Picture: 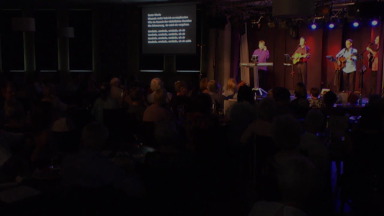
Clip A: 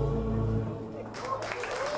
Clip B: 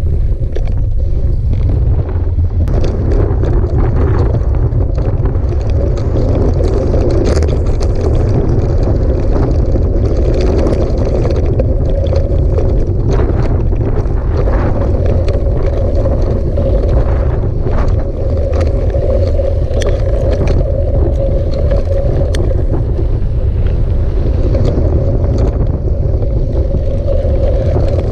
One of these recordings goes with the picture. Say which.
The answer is A